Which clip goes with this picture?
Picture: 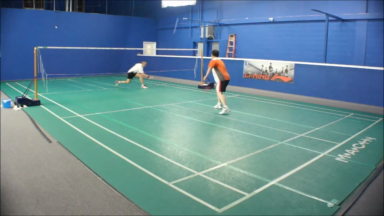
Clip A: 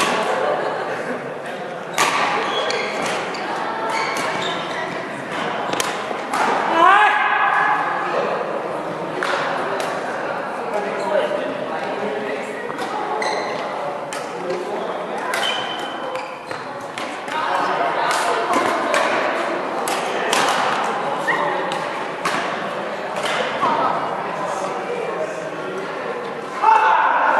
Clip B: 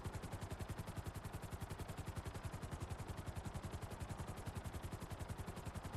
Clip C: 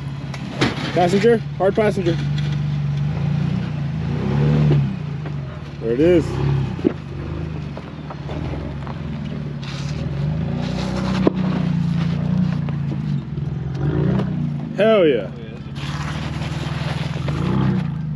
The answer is A